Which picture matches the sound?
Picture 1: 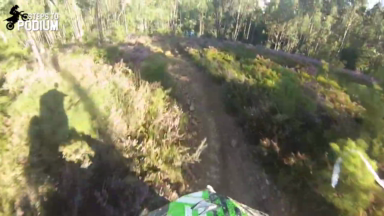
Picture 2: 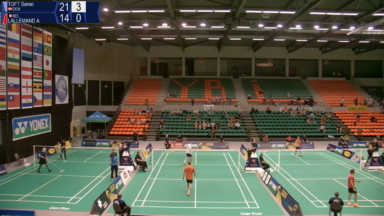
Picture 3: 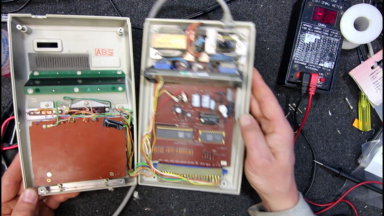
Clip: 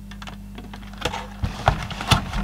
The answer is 3